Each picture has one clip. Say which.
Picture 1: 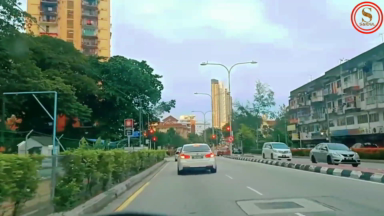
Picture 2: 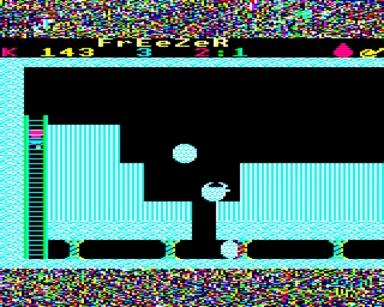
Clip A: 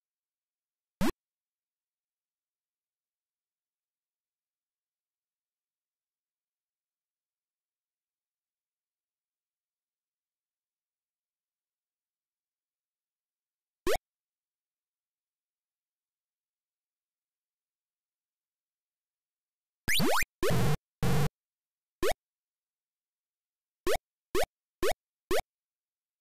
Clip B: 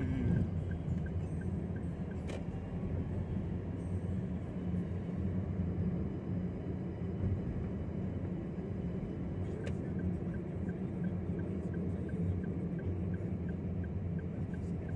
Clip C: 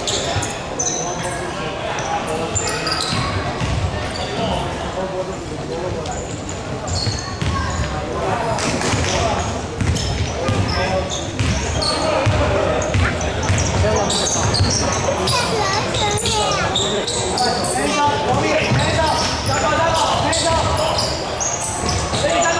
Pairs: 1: B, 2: A